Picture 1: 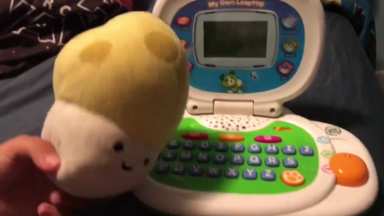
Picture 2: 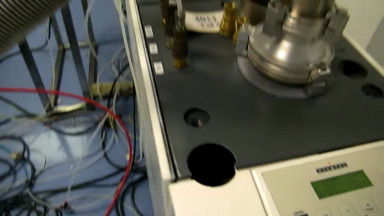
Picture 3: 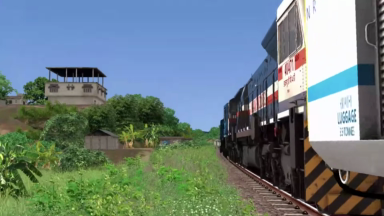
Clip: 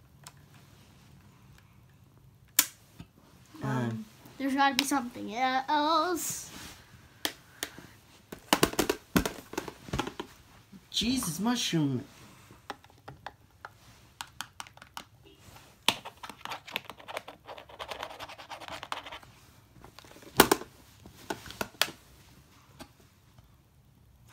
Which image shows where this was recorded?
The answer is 1